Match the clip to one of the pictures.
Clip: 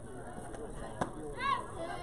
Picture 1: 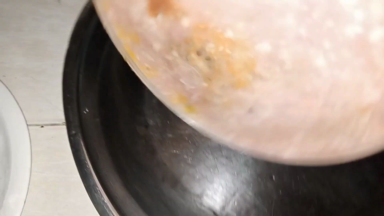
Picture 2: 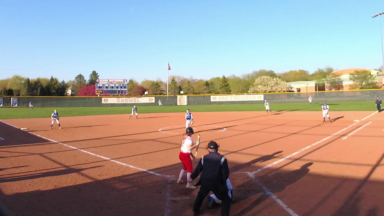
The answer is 2